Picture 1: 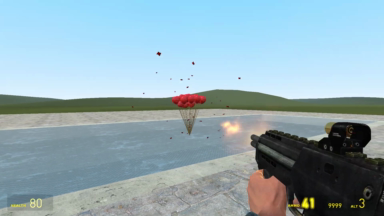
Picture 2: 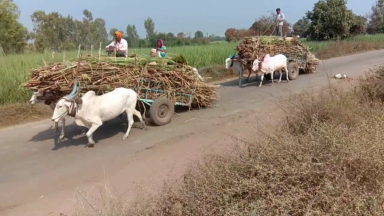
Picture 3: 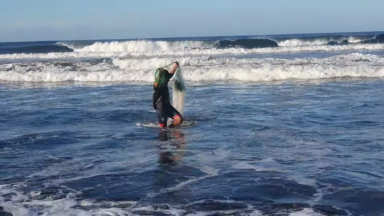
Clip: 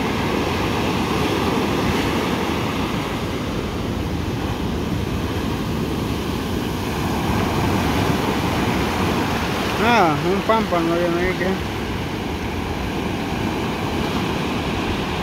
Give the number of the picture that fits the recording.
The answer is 3